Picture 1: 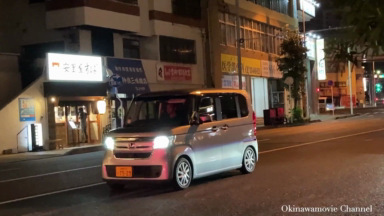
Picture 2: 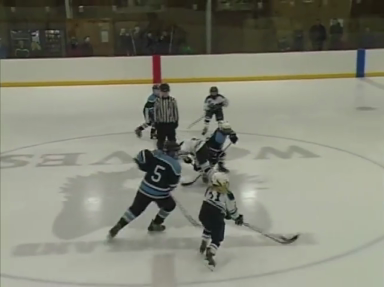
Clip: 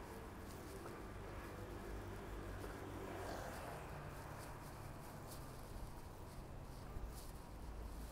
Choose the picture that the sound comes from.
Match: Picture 1